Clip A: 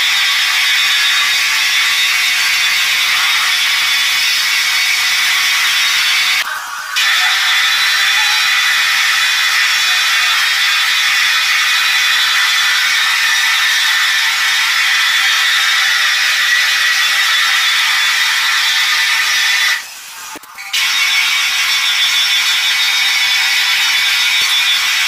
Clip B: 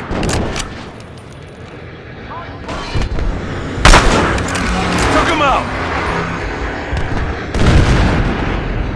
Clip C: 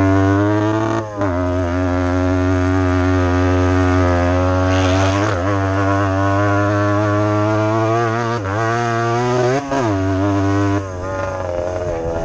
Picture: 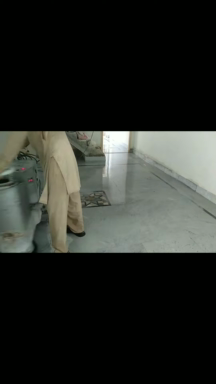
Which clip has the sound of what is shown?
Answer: A